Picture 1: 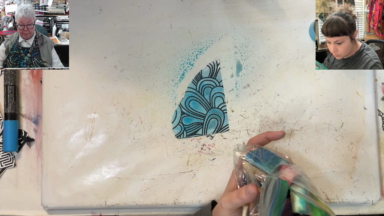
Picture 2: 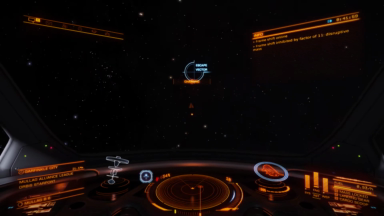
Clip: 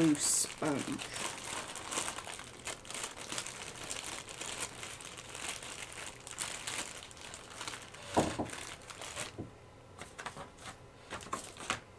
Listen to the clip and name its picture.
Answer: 1